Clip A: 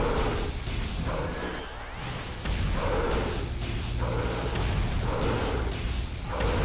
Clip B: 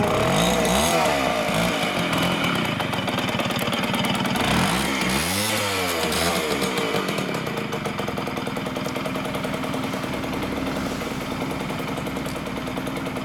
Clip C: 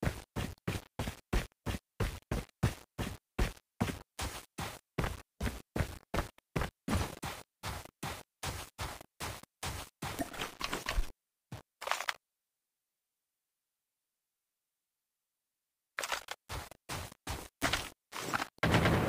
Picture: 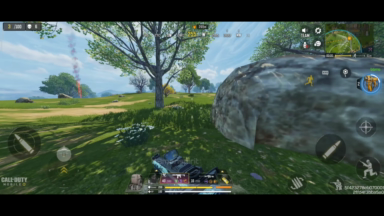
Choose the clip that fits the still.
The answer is C